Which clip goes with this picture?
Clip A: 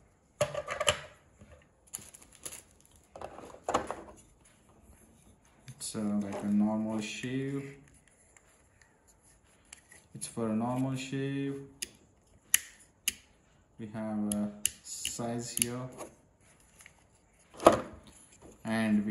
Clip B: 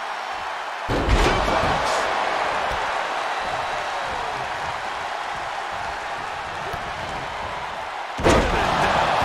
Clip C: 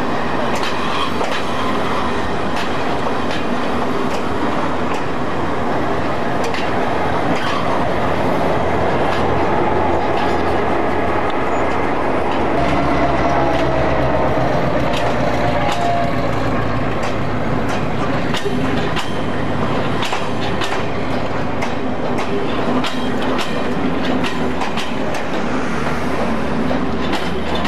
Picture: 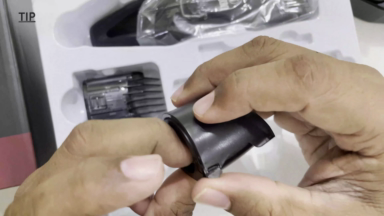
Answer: A